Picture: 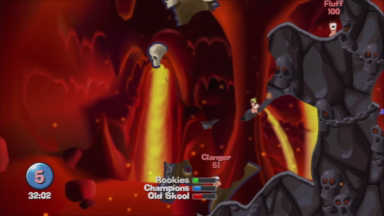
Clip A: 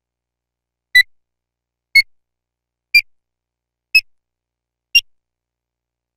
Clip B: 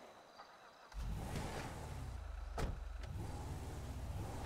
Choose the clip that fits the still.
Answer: A